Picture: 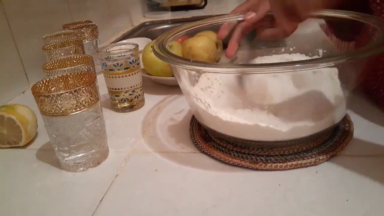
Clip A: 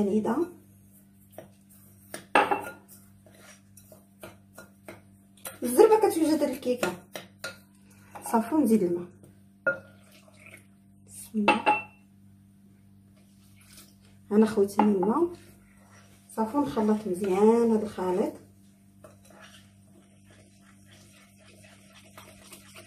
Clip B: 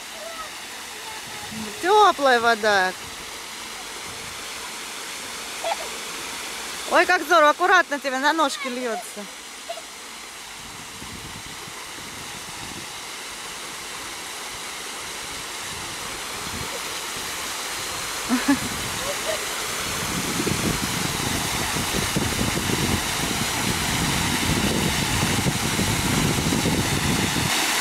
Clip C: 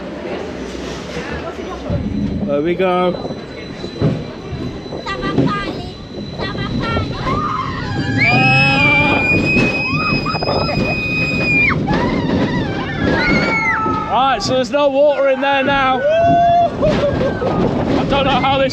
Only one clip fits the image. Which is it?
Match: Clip A